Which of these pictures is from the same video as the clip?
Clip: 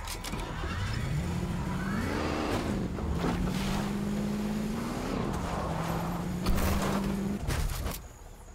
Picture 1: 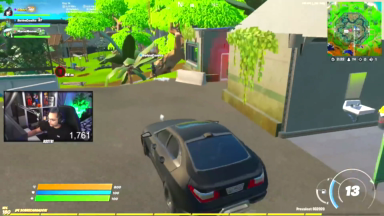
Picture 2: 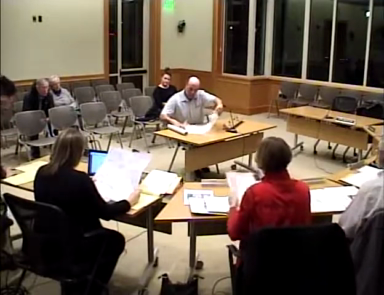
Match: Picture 1